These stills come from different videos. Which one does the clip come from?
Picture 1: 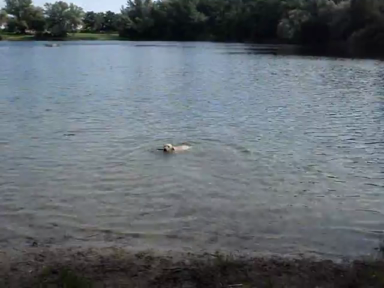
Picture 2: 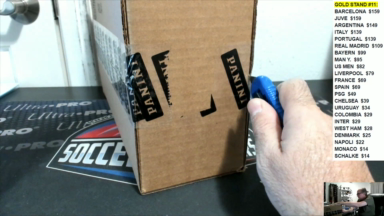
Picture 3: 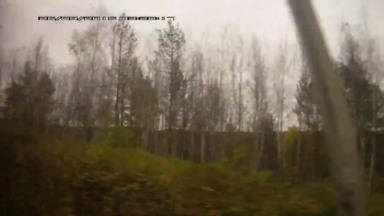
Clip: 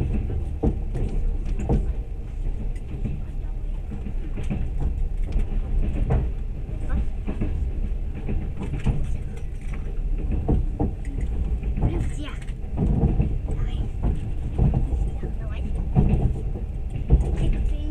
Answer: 3